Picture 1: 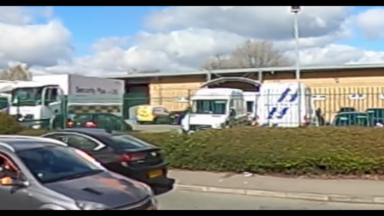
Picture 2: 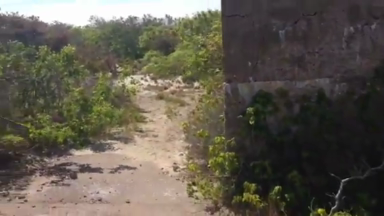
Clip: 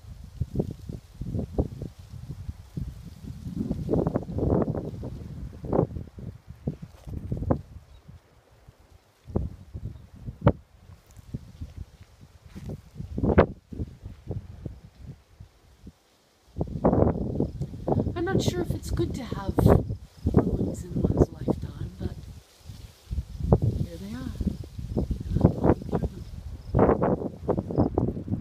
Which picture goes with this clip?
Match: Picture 2